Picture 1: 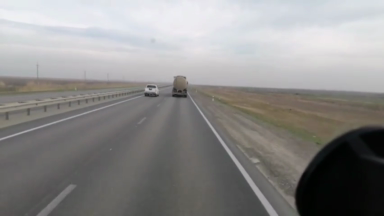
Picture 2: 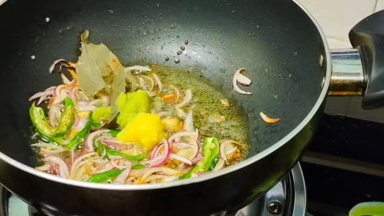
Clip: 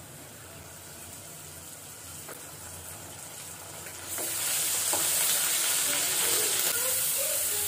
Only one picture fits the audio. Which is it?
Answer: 2